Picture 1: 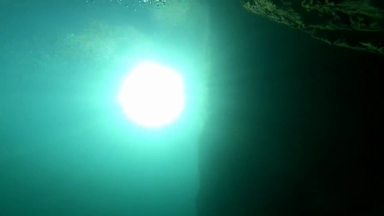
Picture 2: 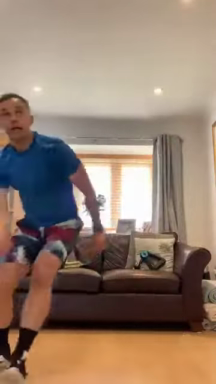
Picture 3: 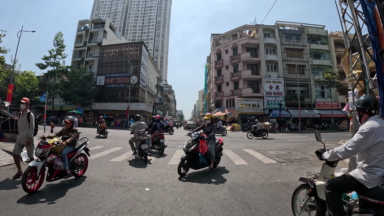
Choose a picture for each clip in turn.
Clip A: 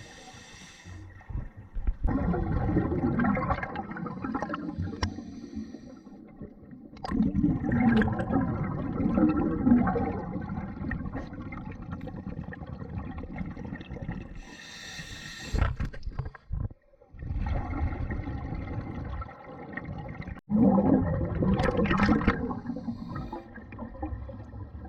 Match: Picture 1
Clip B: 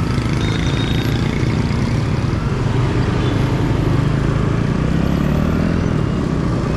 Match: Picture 3